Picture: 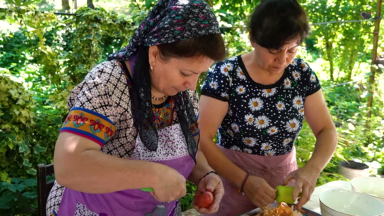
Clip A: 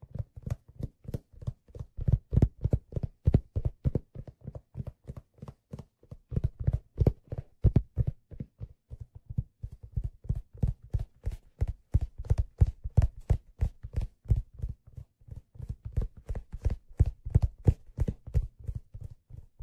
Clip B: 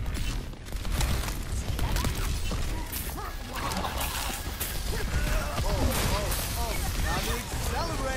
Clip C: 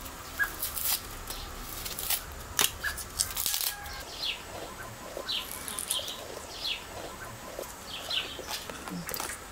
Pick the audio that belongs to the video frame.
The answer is C